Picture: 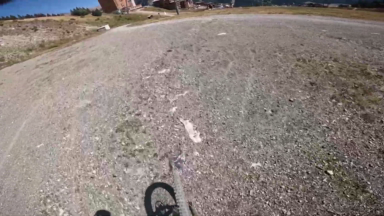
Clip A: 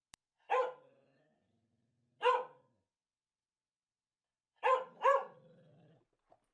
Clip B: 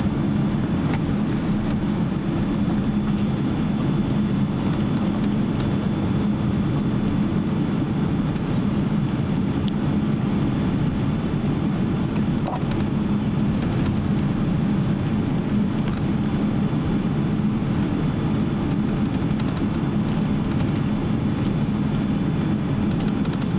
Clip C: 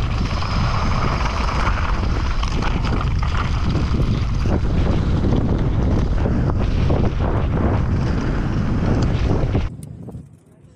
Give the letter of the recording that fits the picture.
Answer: C